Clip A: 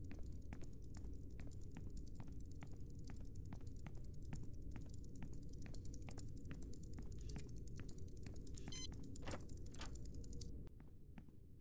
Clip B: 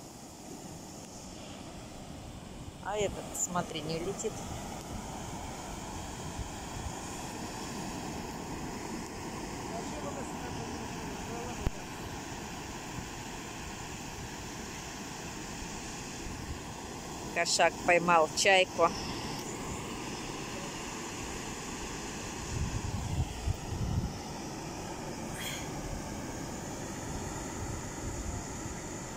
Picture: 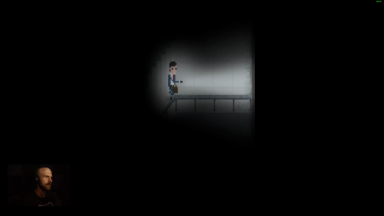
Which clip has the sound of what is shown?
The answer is A